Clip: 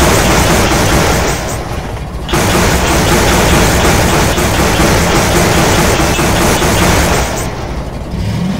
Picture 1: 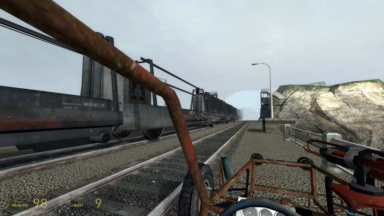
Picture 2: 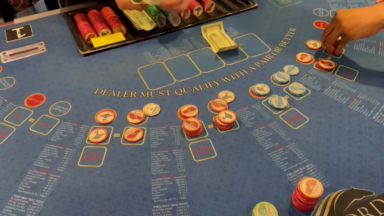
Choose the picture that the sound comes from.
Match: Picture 1